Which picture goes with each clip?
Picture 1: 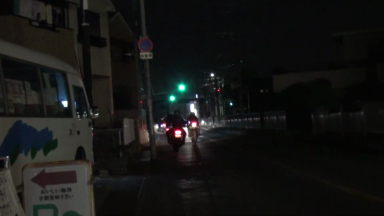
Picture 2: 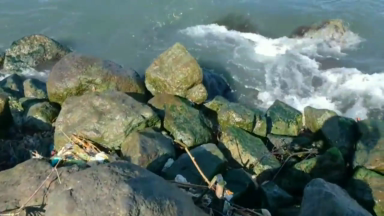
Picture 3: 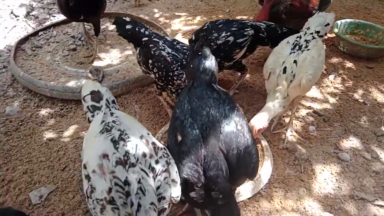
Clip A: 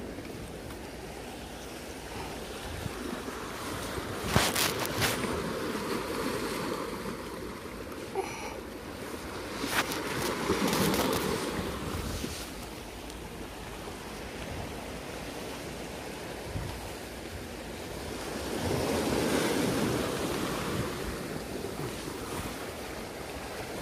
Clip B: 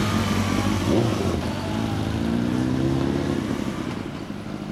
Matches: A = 2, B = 1